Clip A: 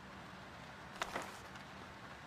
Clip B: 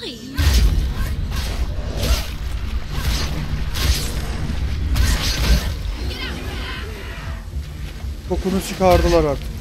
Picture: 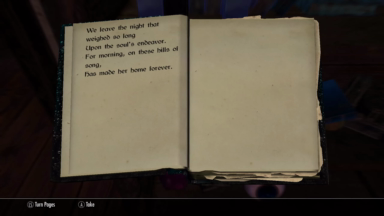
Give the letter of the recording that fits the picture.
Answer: A